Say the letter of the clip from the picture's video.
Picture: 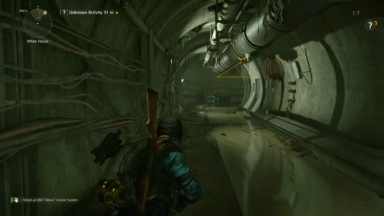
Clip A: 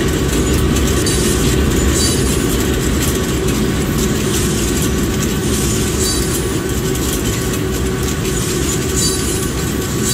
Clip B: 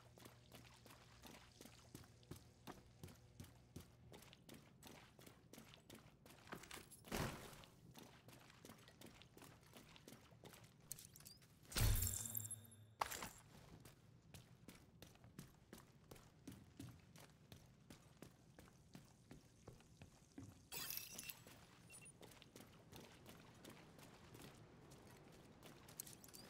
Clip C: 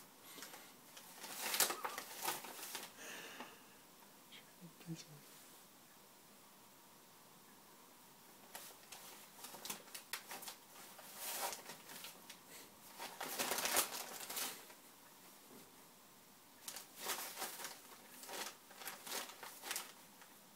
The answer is B